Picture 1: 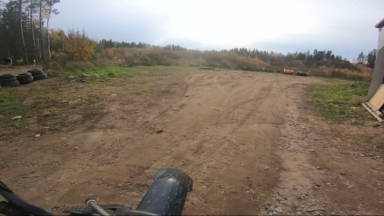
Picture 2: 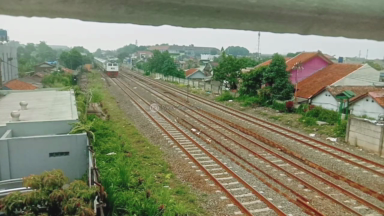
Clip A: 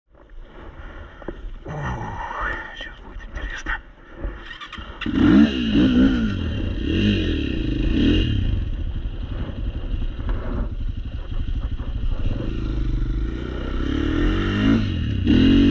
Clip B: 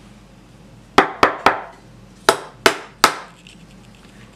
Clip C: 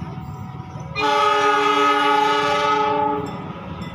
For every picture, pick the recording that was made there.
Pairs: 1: A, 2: C